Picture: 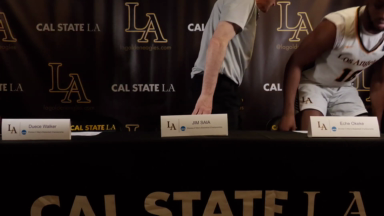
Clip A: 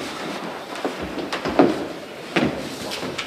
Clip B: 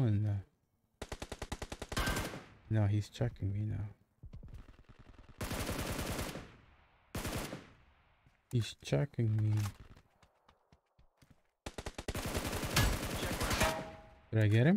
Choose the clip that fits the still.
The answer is A